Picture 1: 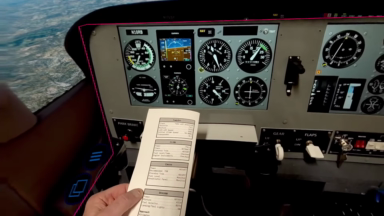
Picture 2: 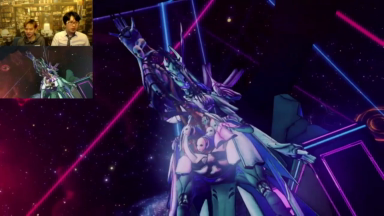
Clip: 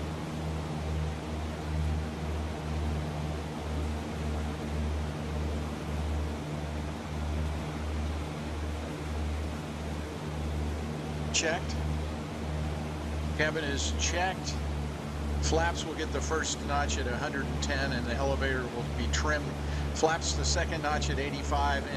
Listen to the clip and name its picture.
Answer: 1